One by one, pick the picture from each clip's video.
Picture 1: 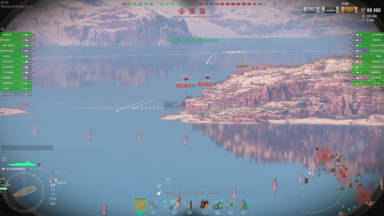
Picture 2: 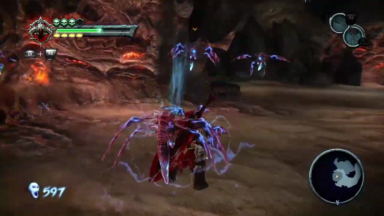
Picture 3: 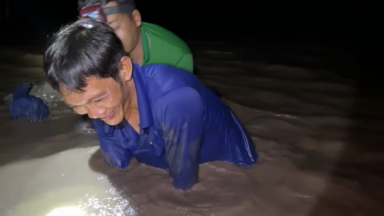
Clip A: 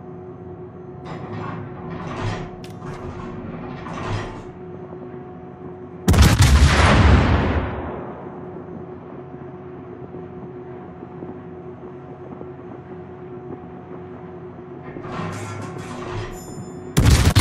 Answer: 1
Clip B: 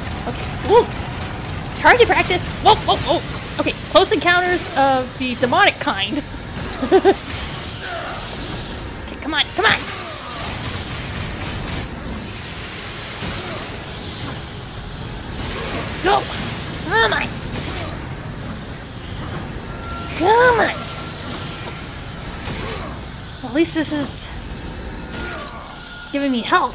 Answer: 2